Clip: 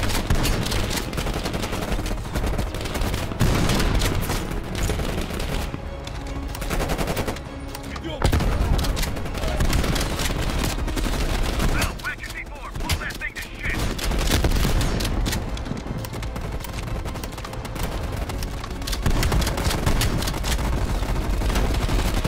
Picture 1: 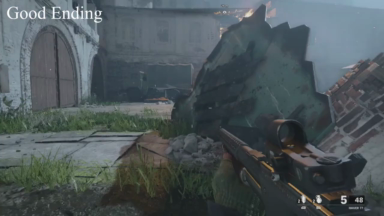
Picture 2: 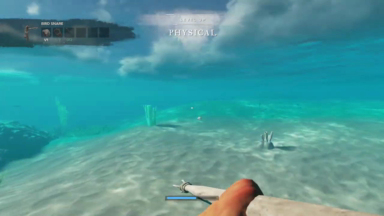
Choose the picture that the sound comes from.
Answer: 1